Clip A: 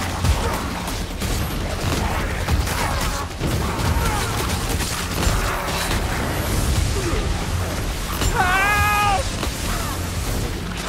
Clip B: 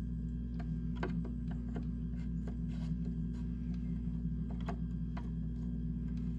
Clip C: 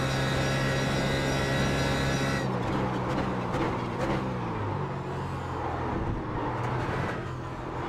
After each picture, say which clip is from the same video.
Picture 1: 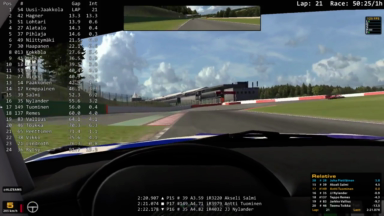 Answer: C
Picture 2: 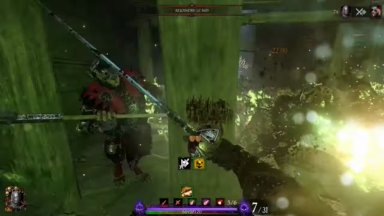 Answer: A